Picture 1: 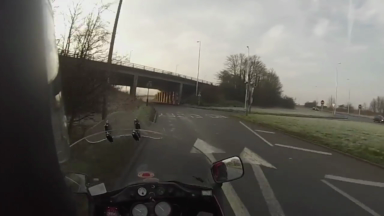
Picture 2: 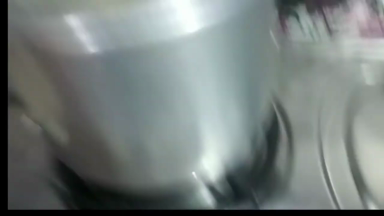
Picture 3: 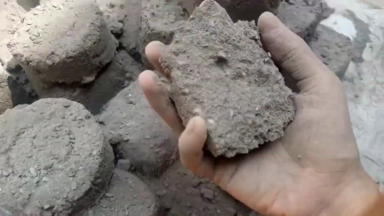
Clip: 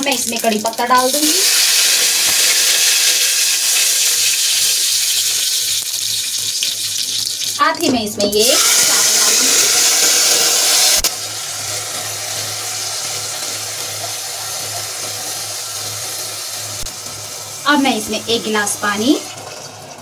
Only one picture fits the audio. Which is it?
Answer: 2